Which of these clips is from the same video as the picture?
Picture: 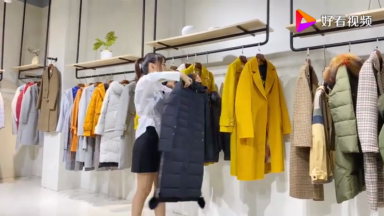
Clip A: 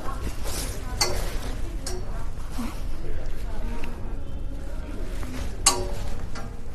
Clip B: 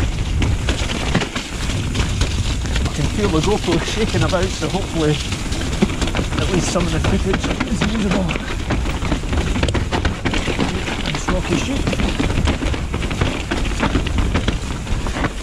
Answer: A